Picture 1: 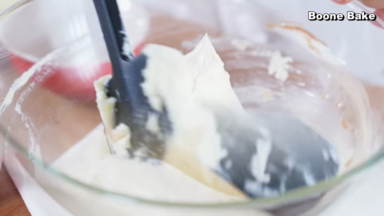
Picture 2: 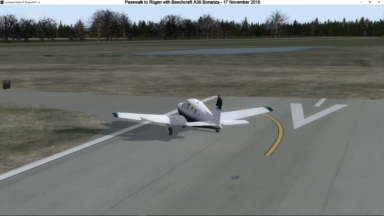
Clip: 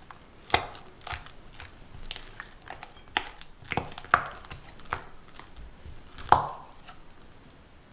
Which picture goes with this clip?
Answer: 1